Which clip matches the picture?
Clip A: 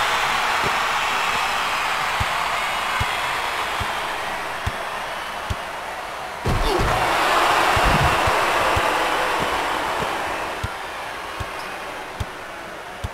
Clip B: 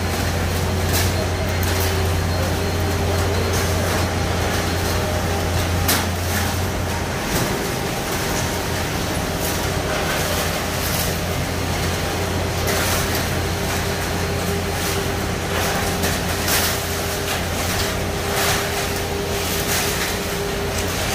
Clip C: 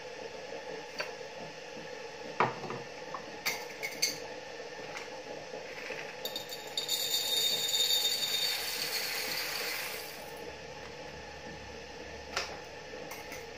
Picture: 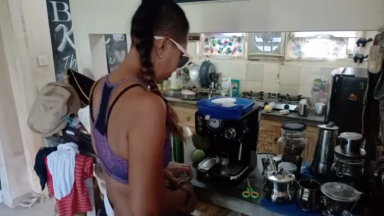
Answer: C